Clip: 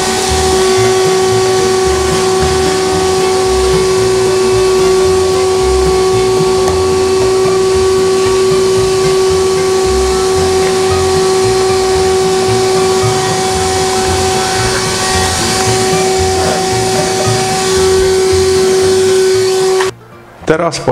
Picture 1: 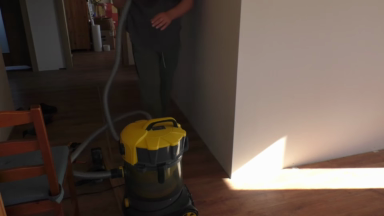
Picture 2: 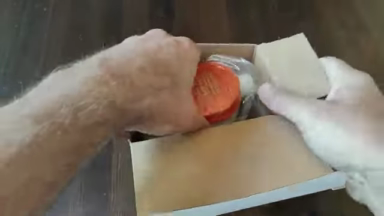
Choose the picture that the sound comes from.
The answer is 1